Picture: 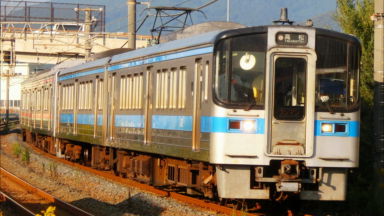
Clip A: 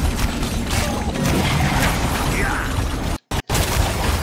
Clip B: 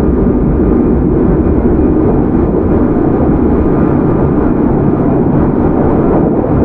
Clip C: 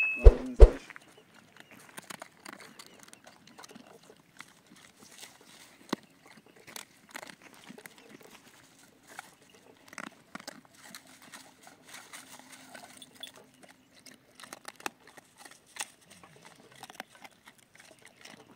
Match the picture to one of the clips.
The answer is B